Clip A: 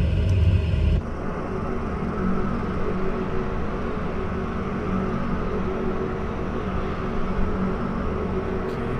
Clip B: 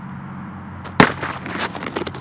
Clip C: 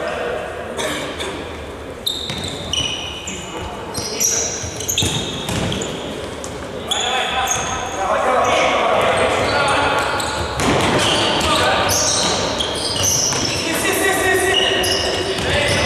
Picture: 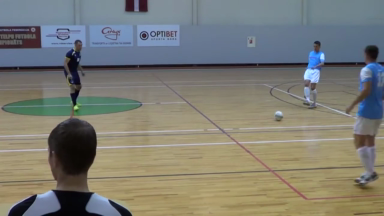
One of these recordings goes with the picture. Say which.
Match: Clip C